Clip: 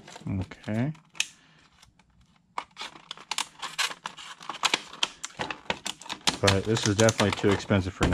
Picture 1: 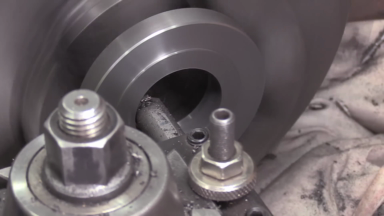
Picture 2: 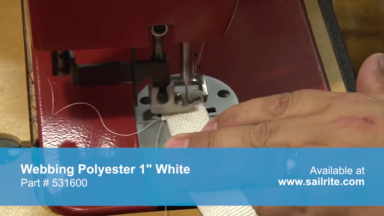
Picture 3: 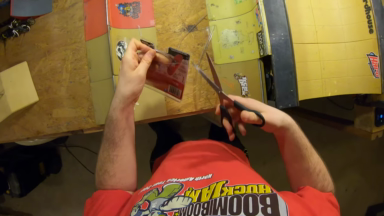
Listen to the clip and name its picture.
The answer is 3